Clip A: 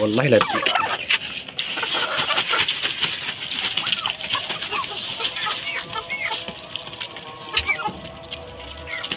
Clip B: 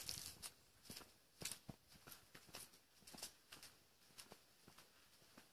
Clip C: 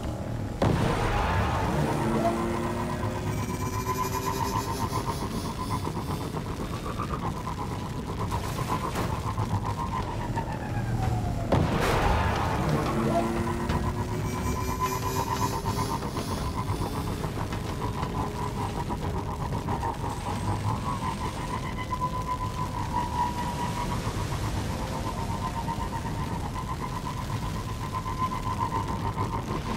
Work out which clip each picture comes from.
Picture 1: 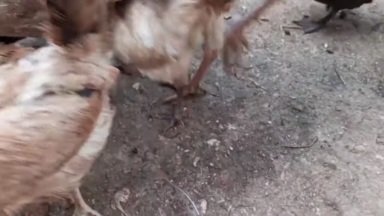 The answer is A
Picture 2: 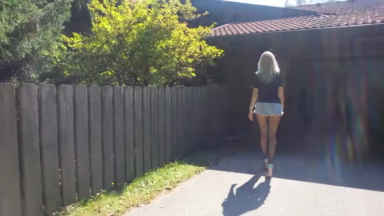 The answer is B